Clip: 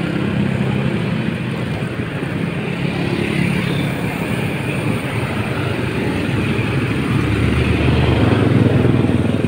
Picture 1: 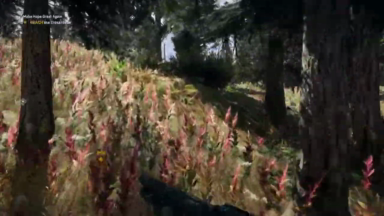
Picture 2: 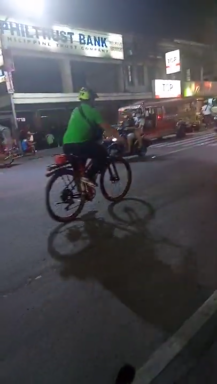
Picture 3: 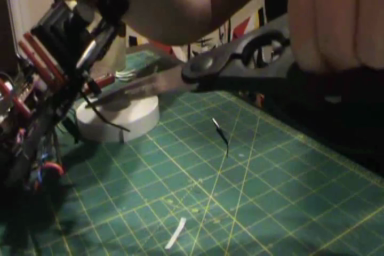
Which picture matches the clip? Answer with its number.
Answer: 2